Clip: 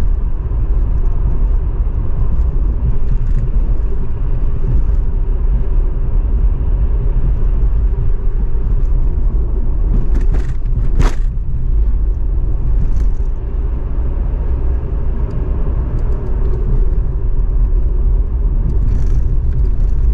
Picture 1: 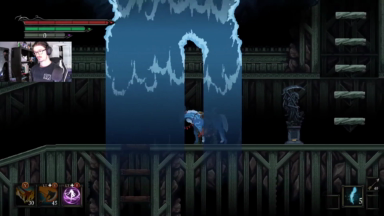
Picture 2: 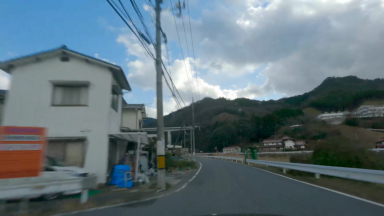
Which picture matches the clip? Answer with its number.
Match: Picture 2